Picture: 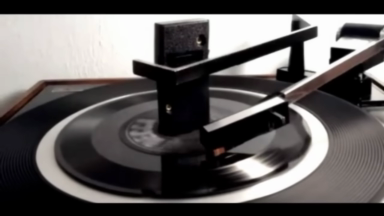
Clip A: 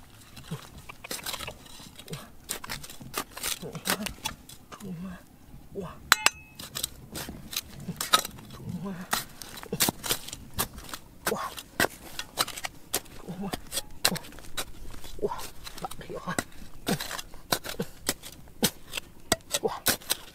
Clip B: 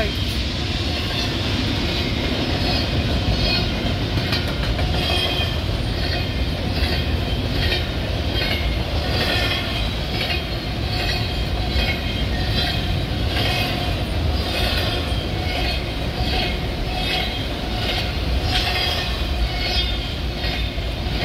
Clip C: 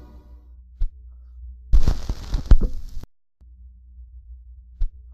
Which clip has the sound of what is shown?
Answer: C